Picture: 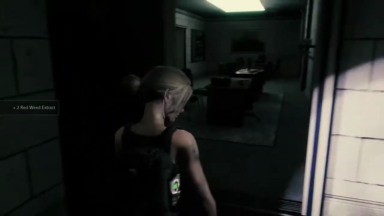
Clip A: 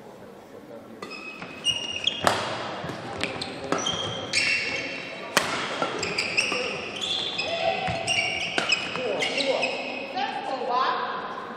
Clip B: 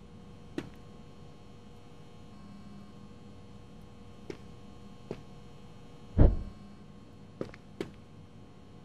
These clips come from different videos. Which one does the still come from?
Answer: B